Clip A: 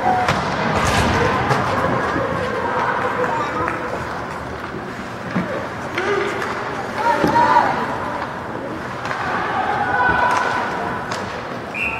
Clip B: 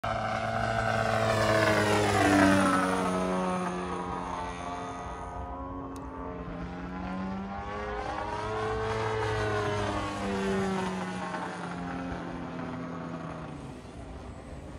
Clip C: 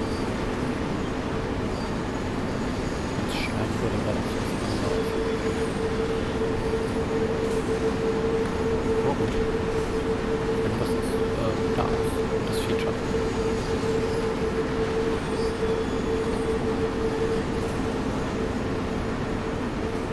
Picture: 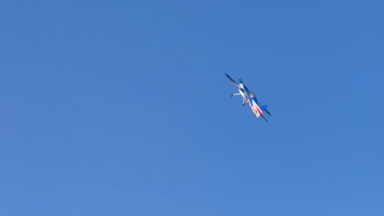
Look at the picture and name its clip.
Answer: B